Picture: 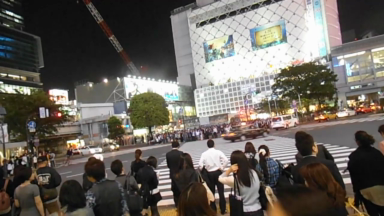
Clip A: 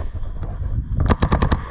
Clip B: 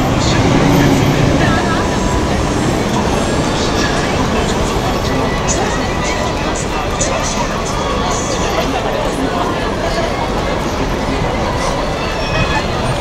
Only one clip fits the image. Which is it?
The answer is B